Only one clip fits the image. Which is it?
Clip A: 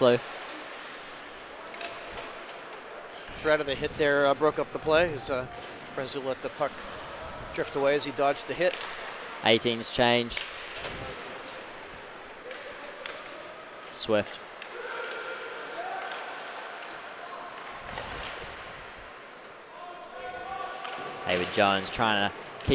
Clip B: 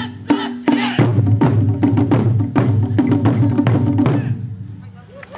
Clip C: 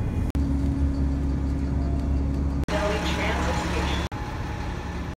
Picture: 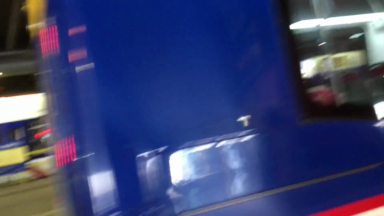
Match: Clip C